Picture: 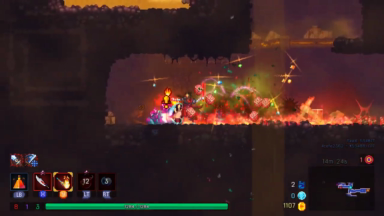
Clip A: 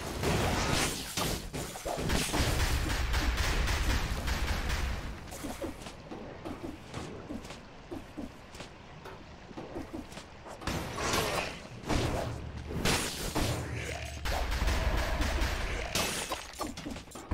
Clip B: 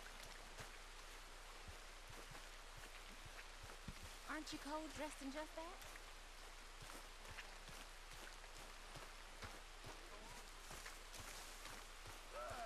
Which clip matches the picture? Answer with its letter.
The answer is A